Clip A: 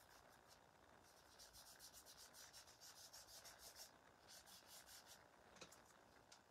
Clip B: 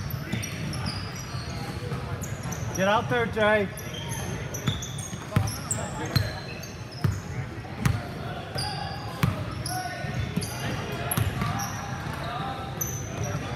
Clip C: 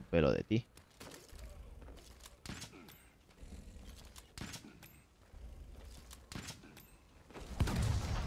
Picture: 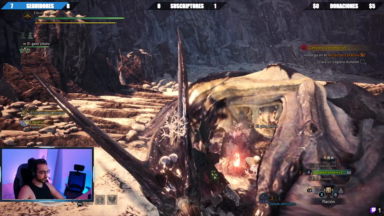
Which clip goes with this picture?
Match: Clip C